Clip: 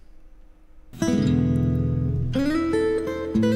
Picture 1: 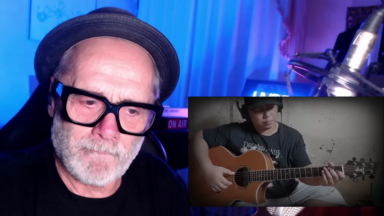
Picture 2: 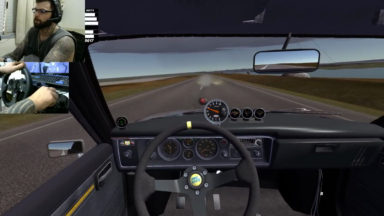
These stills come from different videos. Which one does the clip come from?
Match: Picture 1